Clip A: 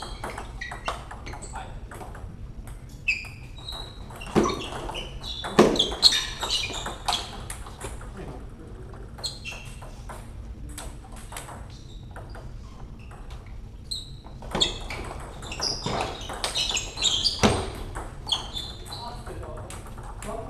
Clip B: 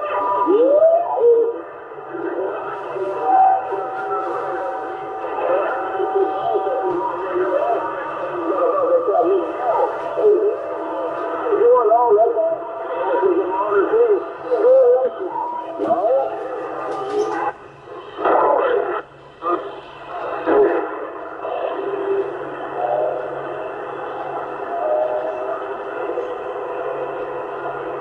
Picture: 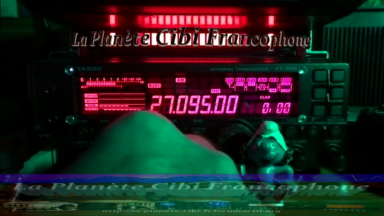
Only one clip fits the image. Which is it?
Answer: B